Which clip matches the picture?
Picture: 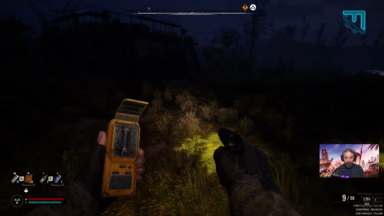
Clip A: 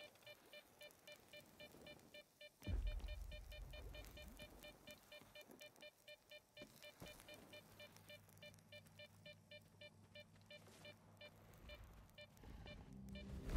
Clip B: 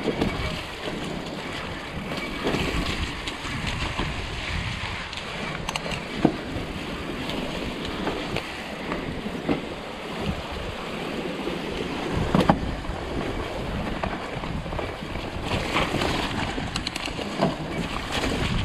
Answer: A